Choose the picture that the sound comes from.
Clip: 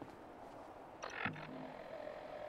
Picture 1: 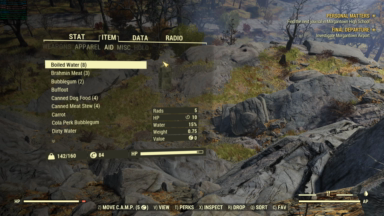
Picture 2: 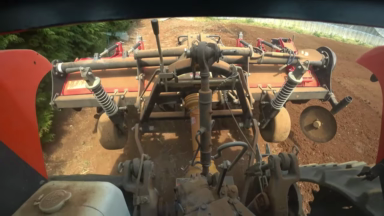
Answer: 1